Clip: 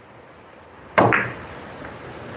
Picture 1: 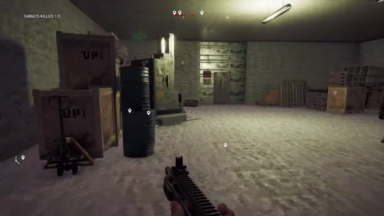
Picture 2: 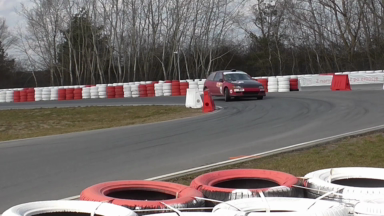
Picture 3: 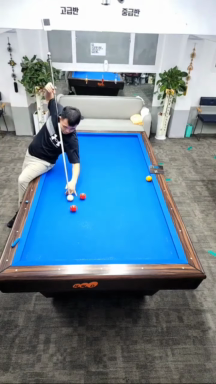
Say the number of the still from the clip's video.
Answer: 3